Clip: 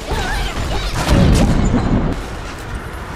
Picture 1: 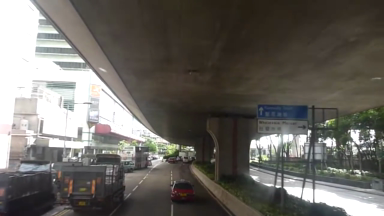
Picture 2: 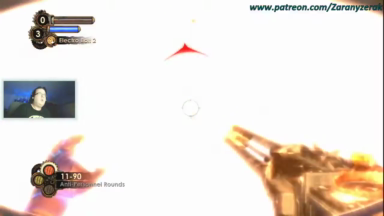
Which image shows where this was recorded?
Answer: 2